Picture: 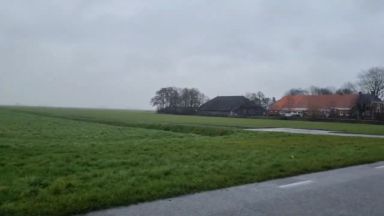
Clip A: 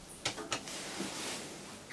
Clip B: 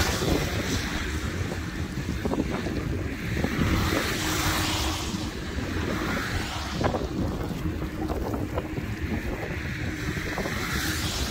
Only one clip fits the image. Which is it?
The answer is B